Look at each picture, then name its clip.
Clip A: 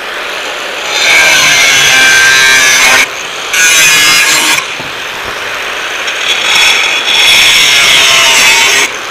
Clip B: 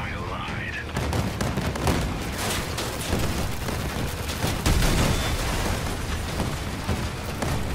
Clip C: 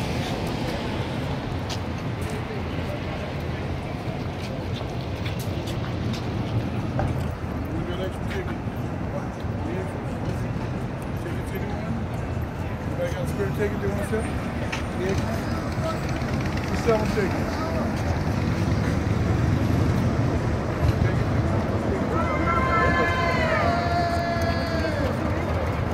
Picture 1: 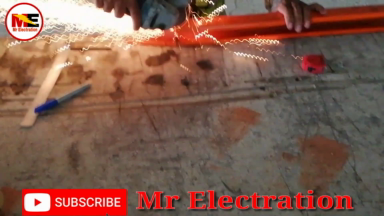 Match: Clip A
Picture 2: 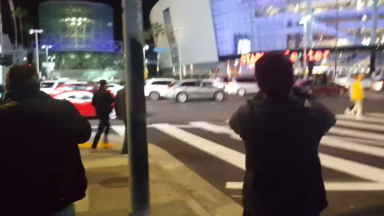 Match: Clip C